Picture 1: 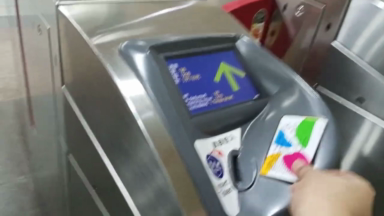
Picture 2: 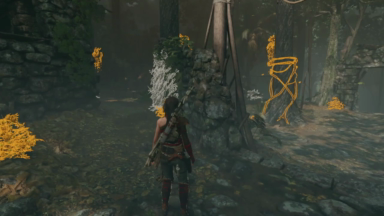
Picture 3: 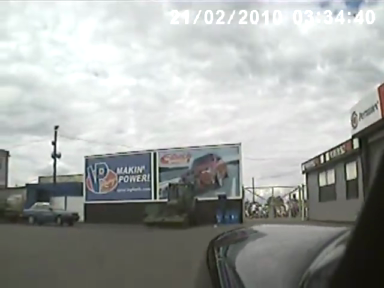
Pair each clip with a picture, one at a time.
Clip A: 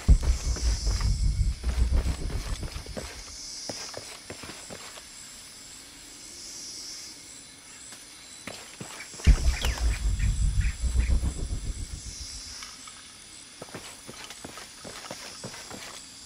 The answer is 2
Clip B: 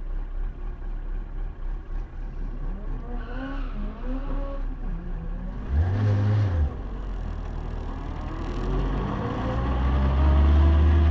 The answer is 3